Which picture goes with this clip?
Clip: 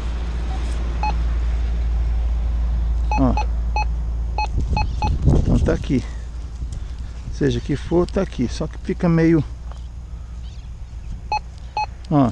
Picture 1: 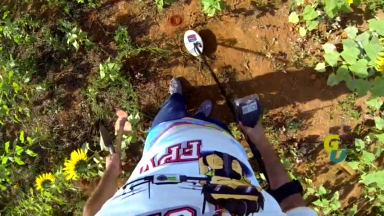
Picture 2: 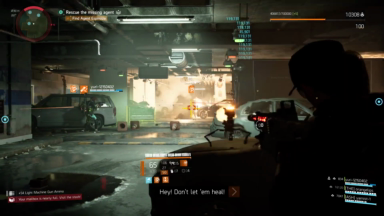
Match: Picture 1